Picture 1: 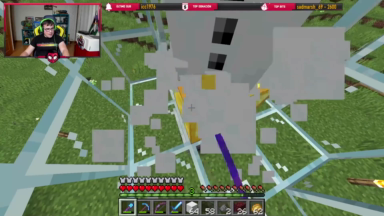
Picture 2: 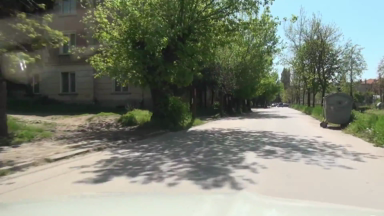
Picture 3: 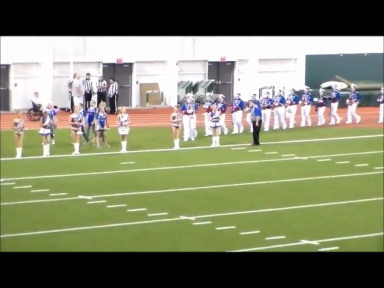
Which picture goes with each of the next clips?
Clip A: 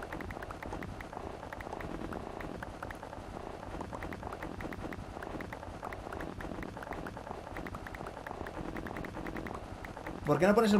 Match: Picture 1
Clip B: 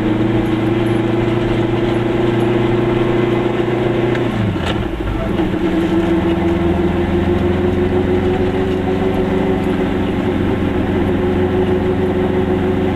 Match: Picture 2